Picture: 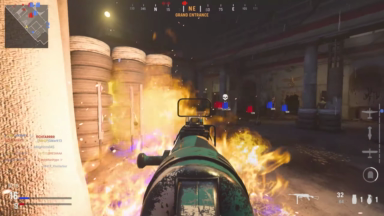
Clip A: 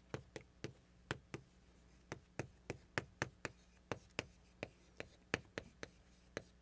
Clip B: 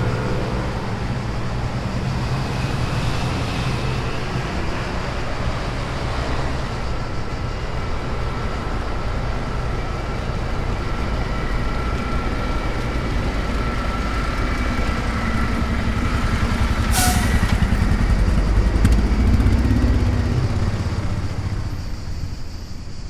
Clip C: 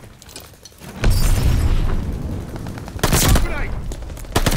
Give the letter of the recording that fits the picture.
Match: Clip C